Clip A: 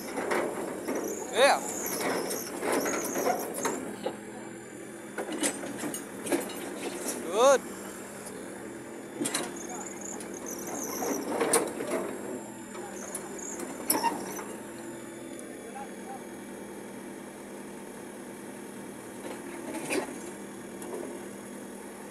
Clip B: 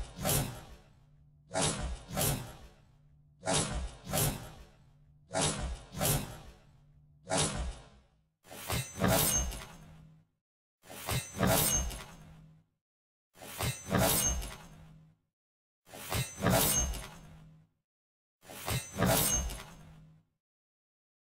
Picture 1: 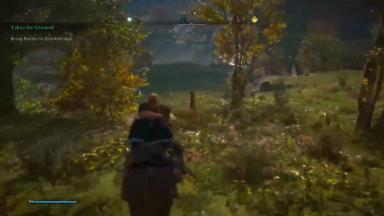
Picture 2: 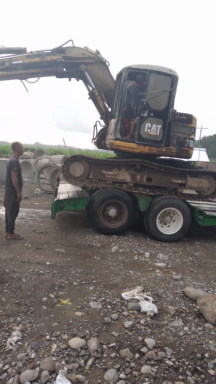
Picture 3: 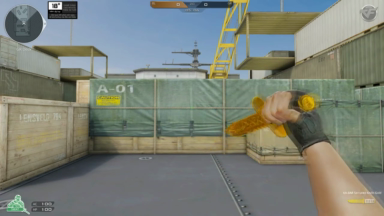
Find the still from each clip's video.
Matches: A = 2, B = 3